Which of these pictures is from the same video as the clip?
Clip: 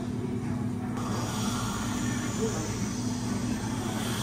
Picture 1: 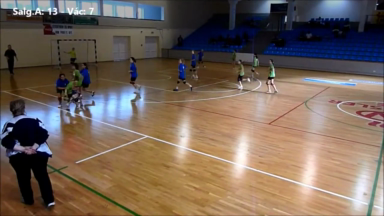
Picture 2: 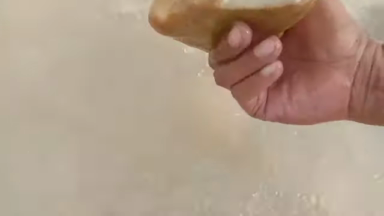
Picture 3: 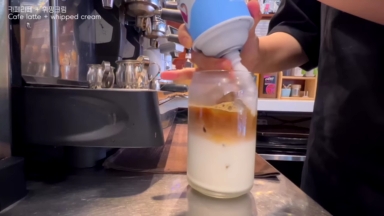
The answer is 3